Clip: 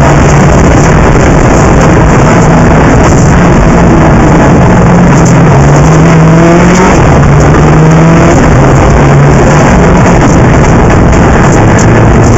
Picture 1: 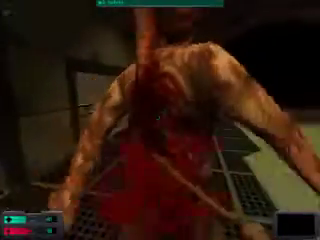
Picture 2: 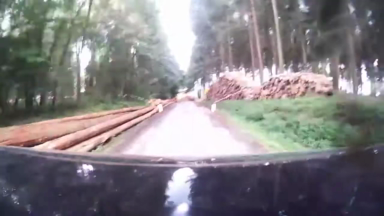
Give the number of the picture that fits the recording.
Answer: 2